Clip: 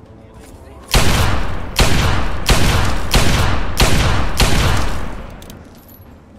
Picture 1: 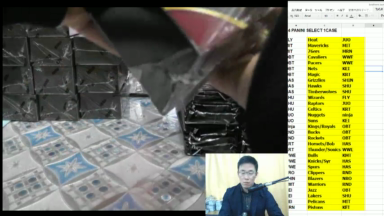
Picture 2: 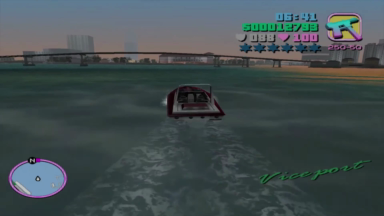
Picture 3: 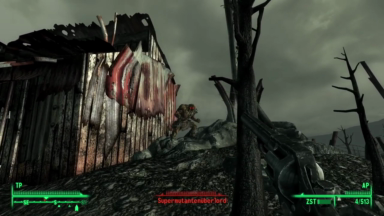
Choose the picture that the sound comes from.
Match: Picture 3